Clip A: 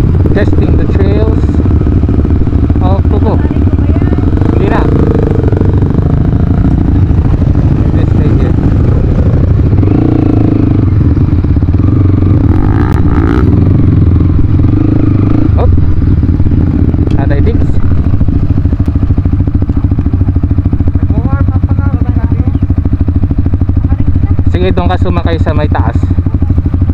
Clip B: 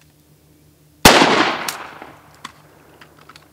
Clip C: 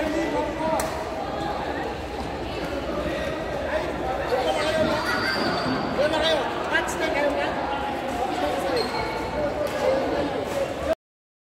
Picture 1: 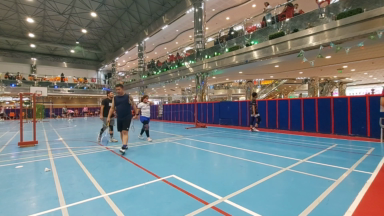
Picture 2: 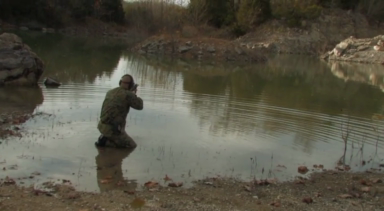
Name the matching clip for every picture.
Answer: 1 C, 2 B